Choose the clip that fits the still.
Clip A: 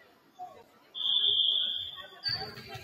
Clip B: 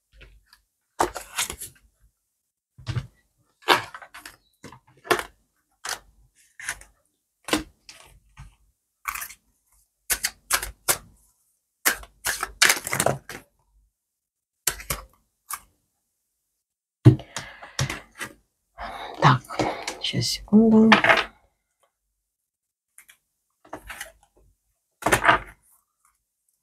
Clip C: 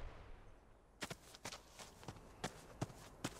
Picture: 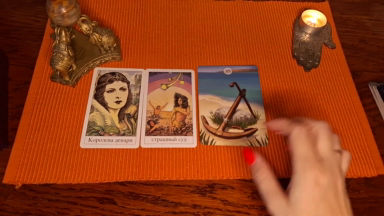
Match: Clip B